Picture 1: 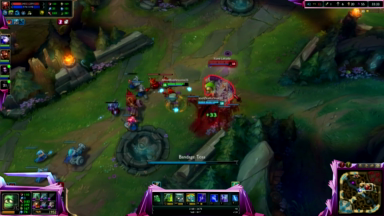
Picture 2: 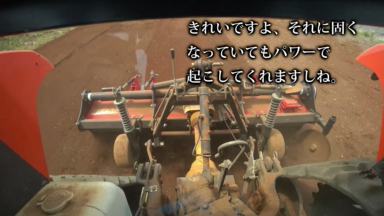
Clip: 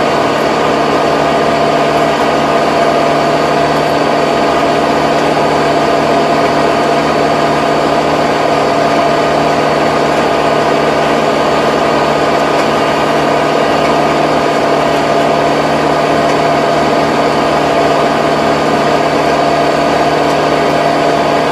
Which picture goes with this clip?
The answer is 2